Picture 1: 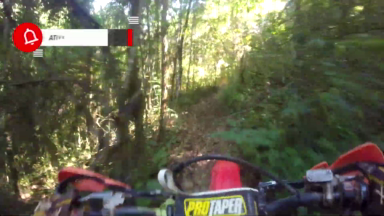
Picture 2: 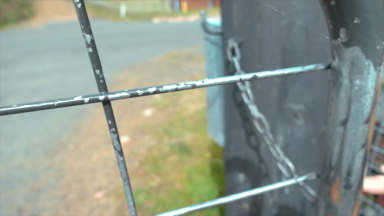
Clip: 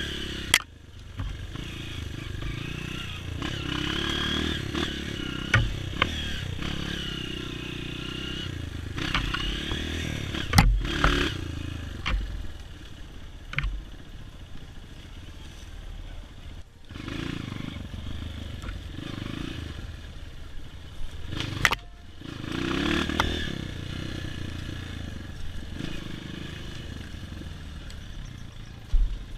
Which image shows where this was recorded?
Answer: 1